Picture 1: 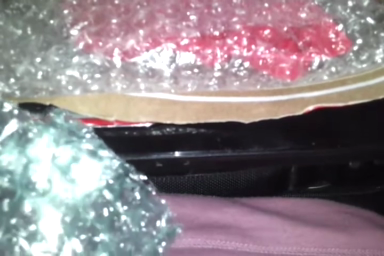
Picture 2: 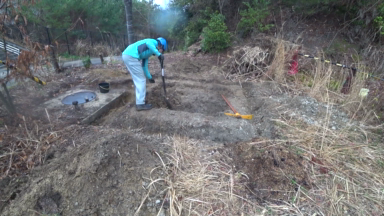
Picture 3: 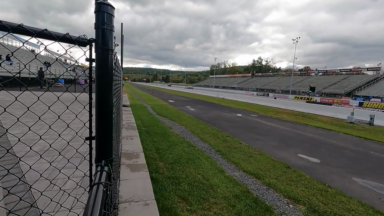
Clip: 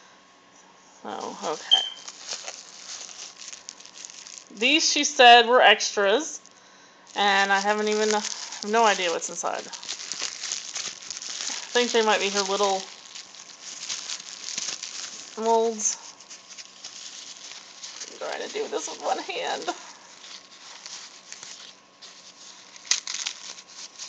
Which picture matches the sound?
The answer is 1